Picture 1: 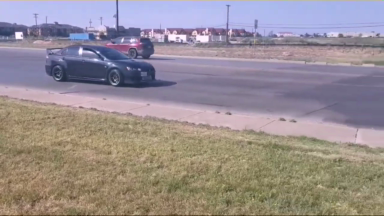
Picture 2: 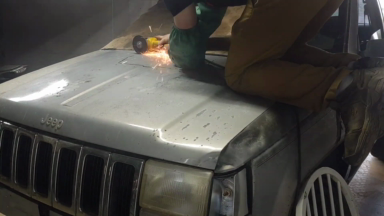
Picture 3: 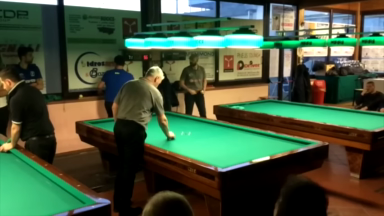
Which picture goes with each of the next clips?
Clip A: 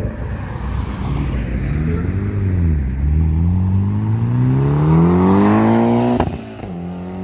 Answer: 1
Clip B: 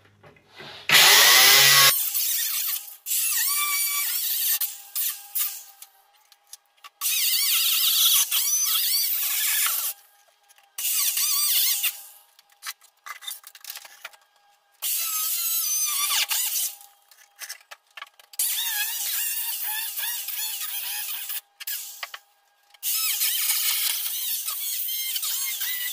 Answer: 2